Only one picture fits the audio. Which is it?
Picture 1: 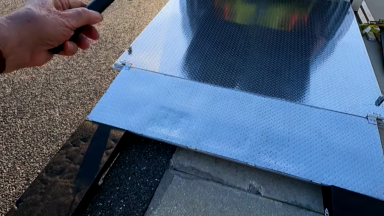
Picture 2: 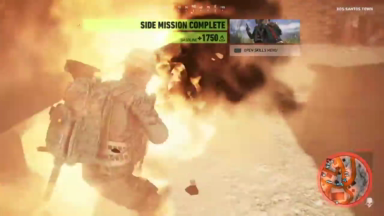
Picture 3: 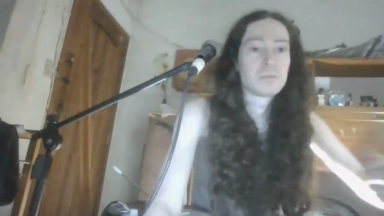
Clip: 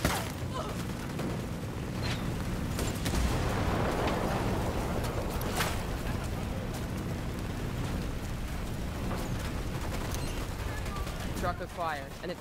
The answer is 2